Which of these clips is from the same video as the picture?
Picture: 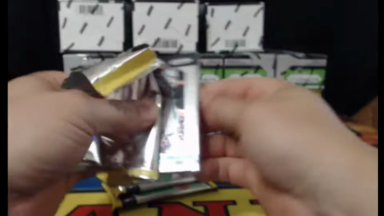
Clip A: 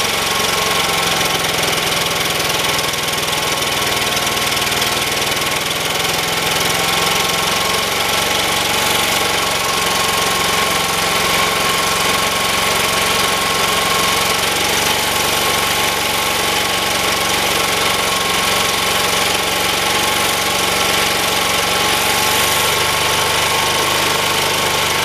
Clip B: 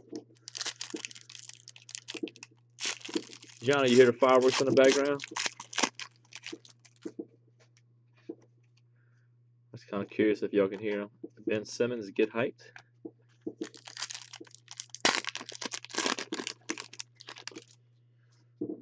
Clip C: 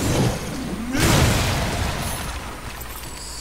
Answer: B